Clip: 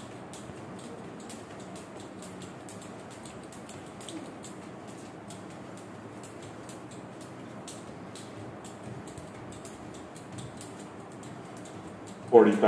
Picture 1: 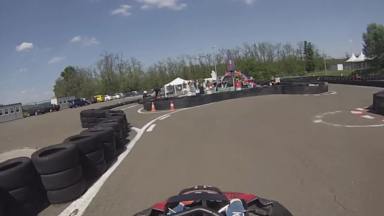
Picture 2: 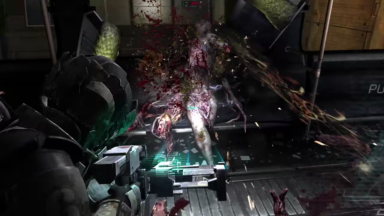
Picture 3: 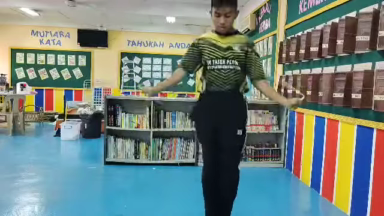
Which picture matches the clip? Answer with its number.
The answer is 3